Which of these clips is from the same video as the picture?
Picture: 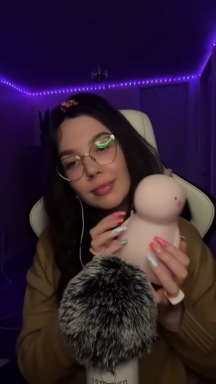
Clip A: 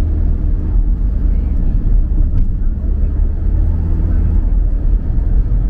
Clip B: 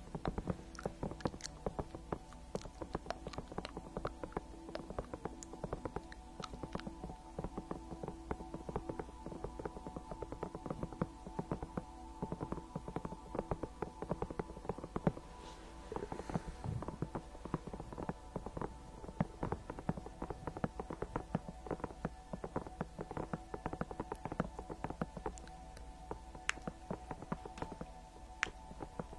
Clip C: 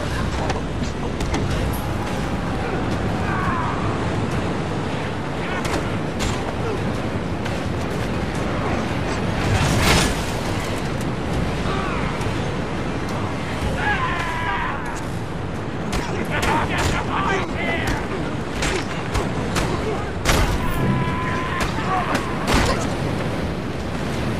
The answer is B